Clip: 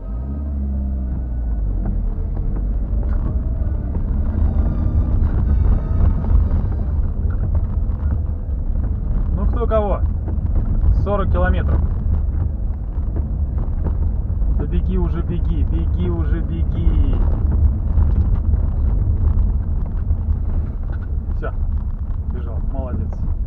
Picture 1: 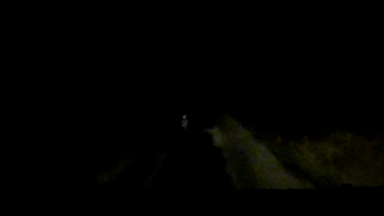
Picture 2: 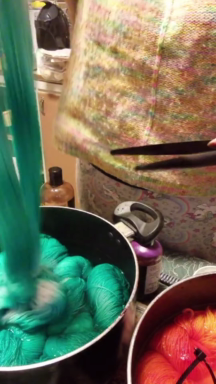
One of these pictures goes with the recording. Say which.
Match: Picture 1